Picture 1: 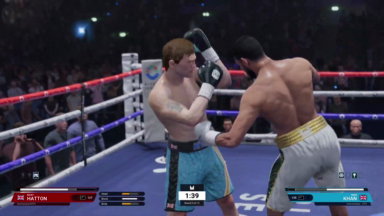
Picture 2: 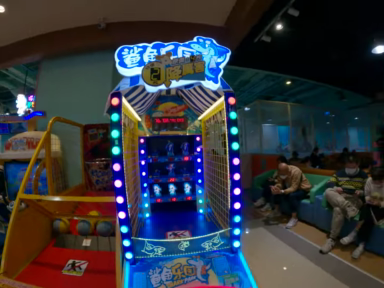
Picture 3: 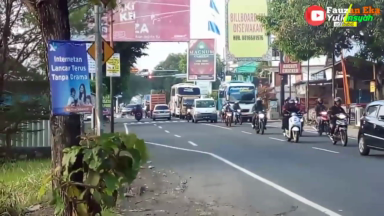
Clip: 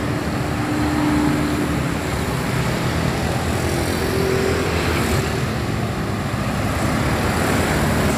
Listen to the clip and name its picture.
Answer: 3